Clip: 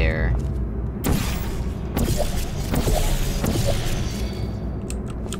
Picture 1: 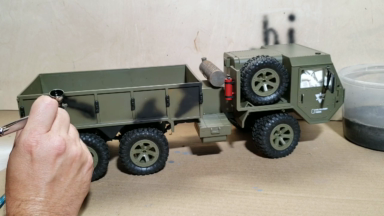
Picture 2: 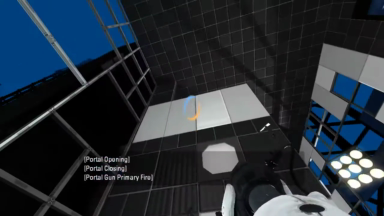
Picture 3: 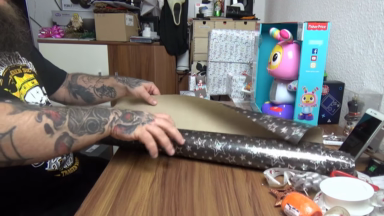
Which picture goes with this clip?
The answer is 2